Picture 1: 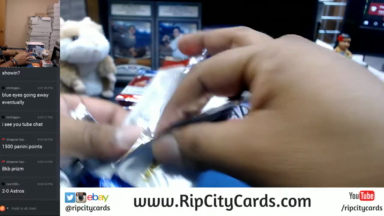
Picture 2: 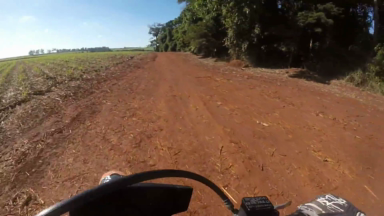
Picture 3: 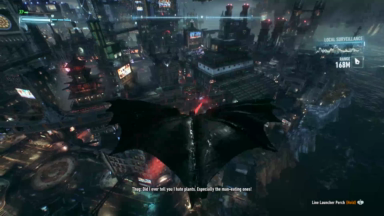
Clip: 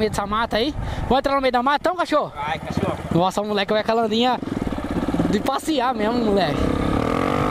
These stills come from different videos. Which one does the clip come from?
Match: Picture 2